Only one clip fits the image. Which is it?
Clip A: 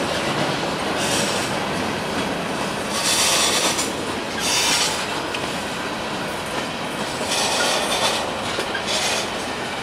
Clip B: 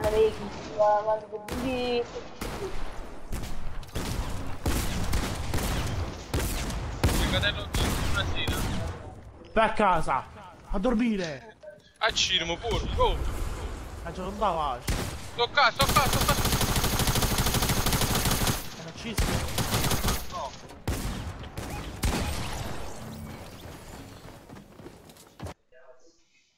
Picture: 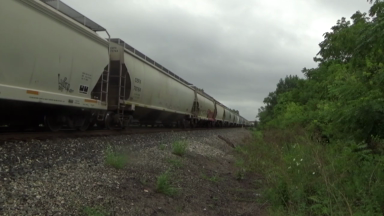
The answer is A